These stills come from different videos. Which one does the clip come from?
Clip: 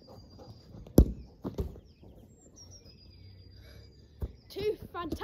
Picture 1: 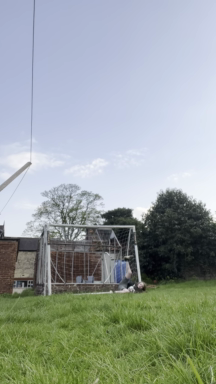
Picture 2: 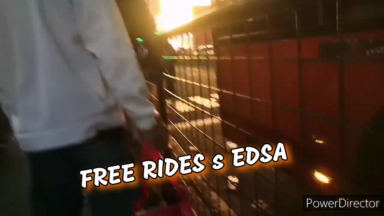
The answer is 1